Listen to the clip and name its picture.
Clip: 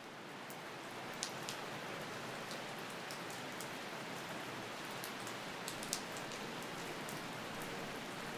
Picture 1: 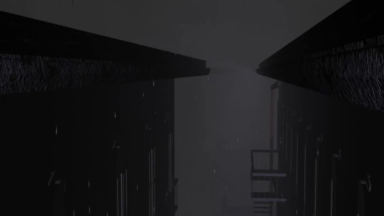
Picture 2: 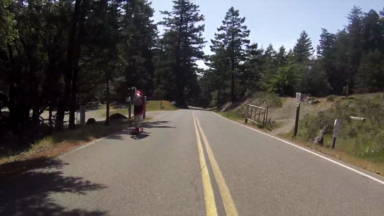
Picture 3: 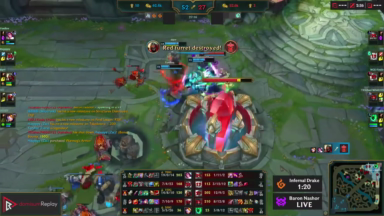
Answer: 1